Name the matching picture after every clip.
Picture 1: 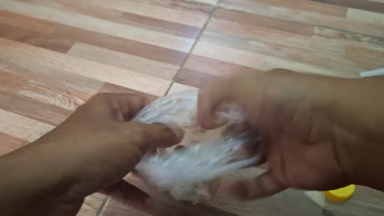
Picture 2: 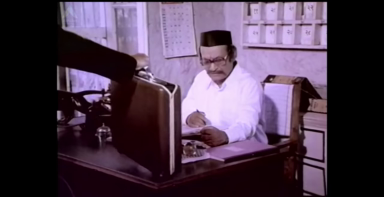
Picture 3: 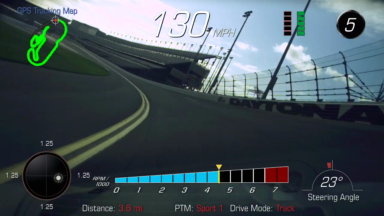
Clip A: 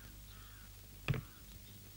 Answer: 2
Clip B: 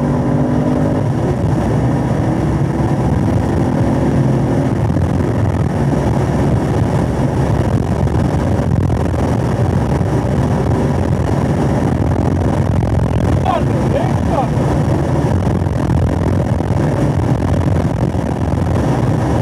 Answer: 3